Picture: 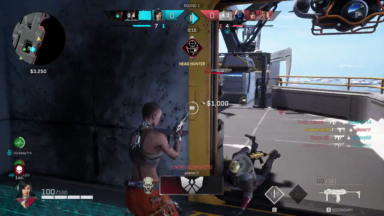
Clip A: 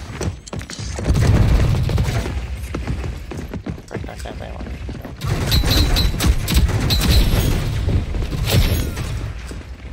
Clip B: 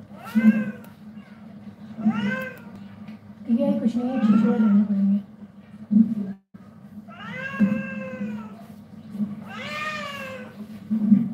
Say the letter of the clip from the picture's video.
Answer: A